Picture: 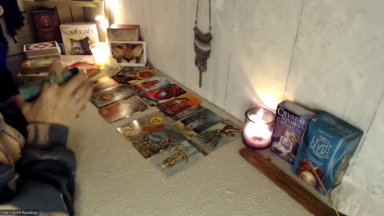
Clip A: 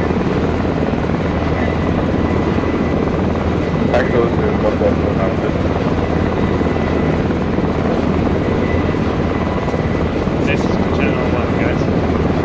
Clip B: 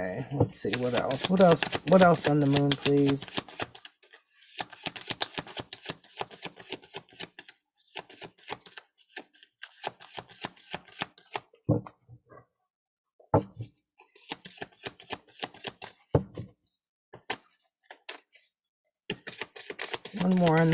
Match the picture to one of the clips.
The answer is B